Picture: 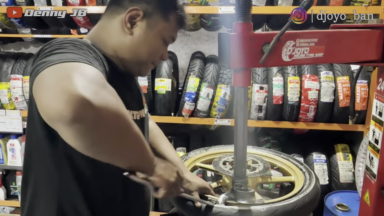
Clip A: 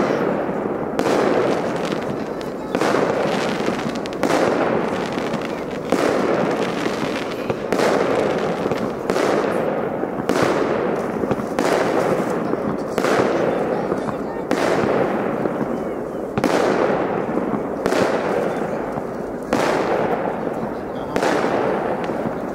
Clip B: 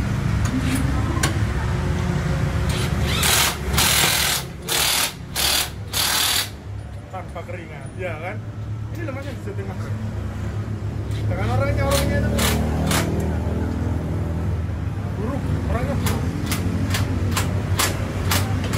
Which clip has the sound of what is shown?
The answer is B